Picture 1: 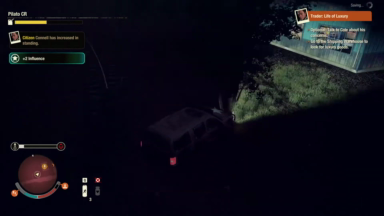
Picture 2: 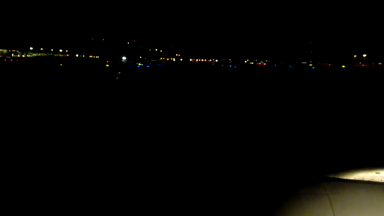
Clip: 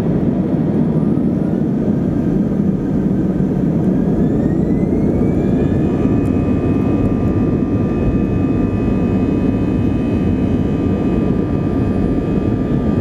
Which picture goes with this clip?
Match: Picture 2